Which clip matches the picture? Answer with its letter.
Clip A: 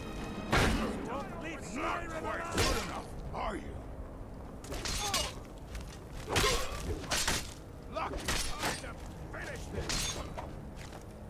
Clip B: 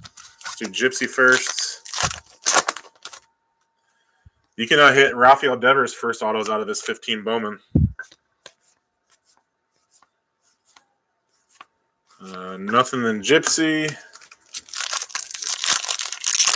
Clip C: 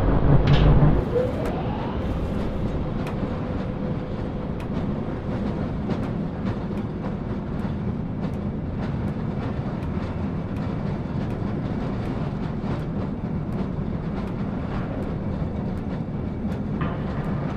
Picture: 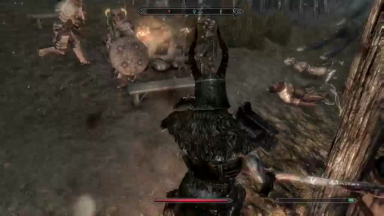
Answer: A